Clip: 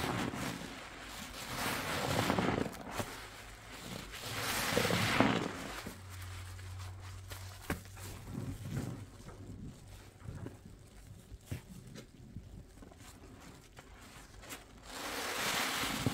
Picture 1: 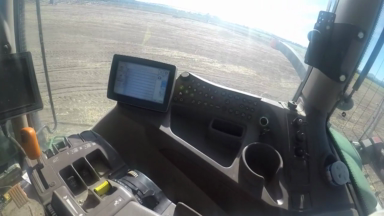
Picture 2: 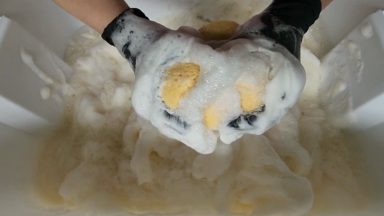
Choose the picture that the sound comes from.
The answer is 2